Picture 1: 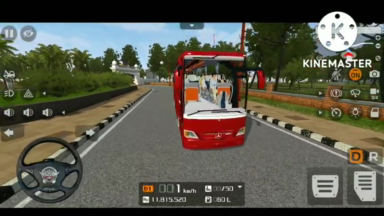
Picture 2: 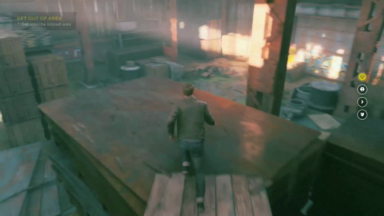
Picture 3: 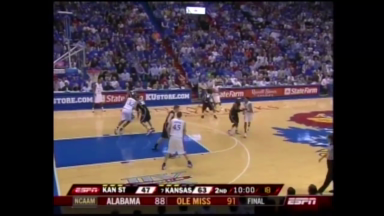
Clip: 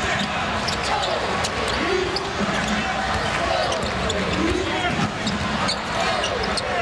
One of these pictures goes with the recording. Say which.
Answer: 3